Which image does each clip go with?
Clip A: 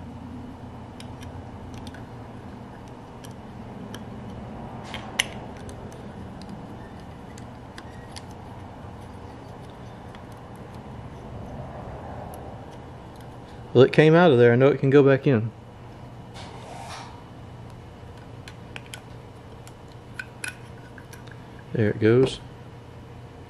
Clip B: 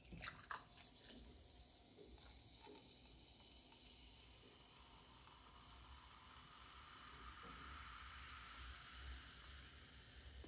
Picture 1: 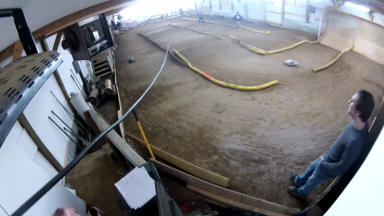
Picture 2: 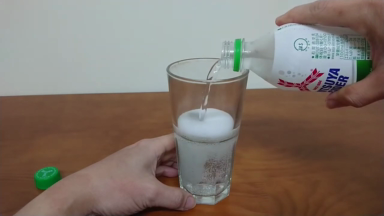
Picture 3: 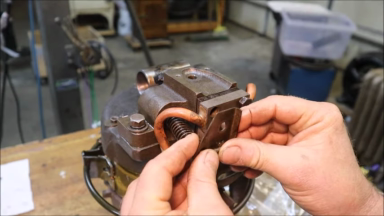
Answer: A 3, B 2